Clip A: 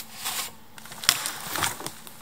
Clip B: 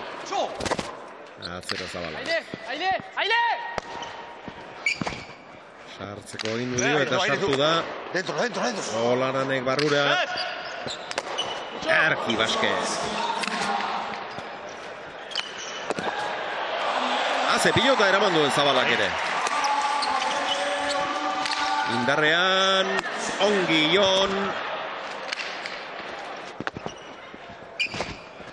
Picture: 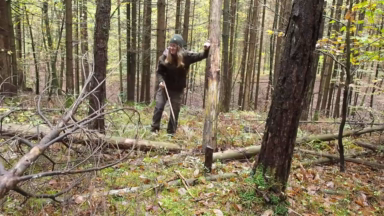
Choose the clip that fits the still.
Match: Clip A